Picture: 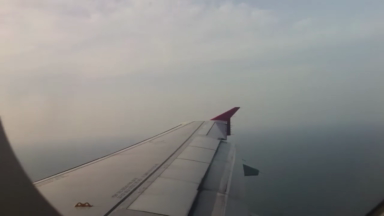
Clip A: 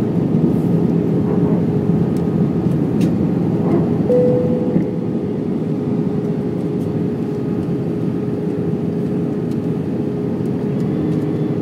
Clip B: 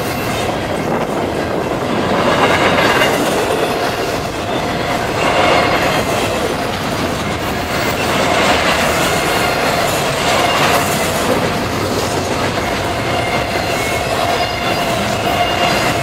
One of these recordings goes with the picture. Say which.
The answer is A